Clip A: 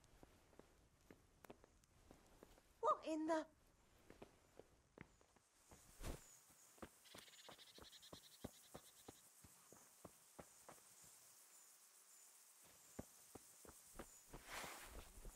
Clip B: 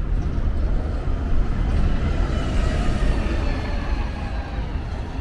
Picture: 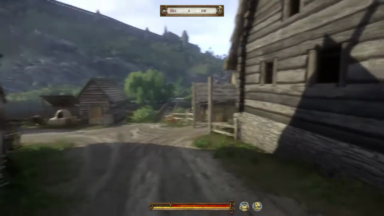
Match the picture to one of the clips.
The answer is A